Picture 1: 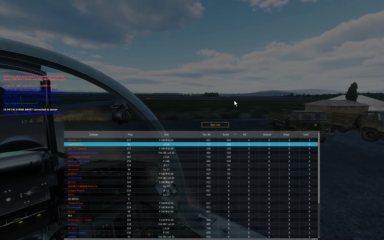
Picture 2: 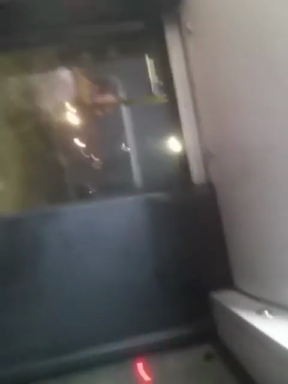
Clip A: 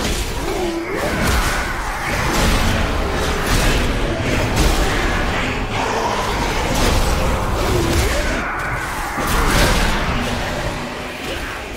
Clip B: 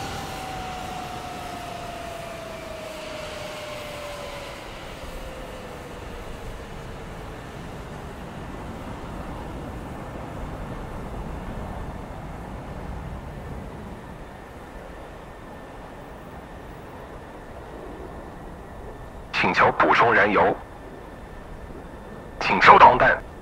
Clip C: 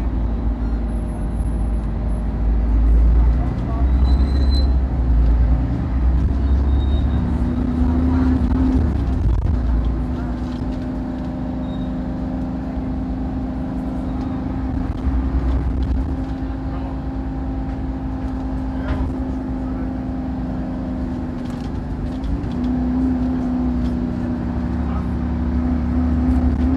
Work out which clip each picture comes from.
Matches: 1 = B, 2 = C